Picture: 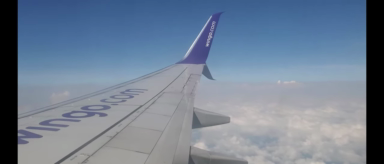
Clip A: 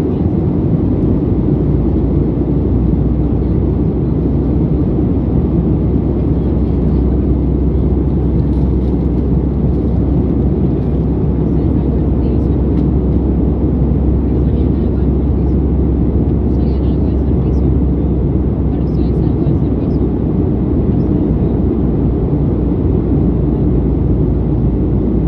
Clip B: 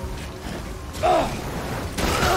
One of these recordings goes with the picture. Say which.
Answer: A